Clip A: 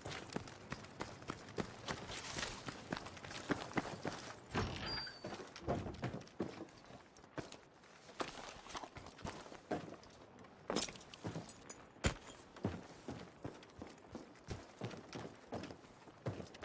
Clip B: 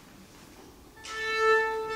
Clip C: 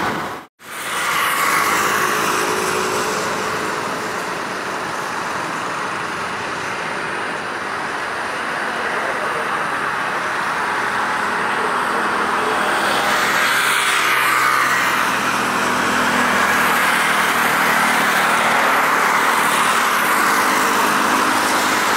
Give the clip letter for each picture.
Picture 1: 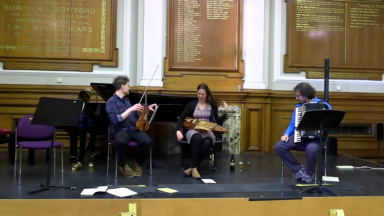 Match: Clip B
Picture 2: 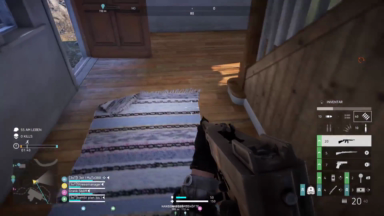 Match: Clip A